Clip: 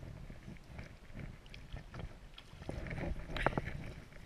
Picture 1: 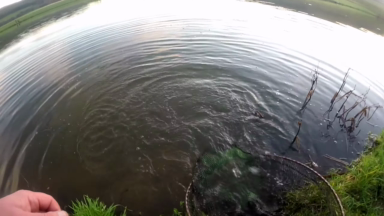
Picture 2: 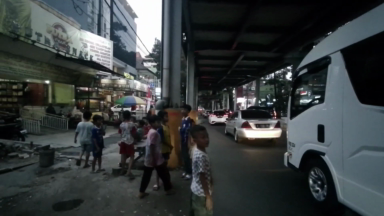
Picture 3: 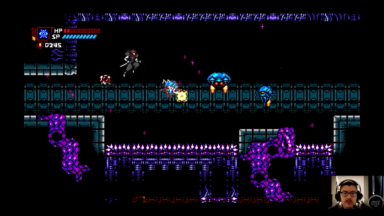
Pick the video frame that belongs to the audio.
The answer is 1